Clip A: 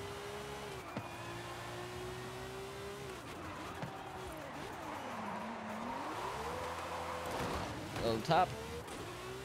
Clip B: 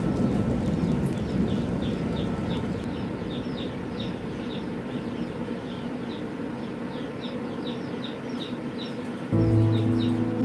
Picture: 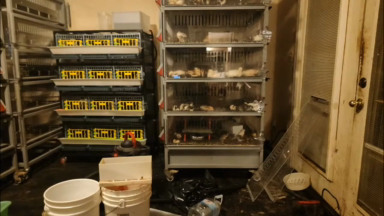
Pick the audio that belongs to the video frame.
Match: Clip B